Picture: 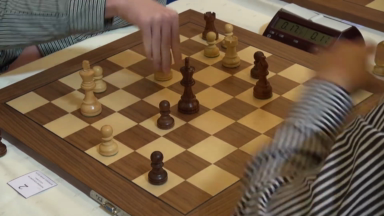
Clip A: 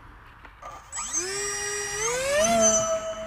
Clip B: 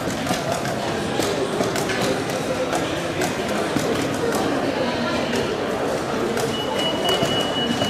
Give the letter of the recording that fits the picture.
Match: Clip B